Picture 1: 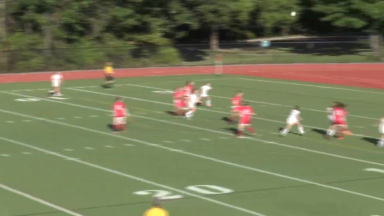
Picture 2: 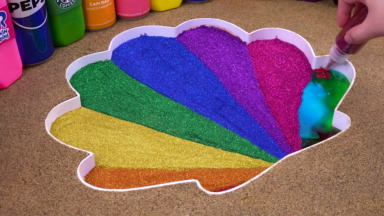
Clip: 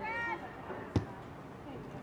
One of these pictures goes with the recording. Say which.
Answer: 1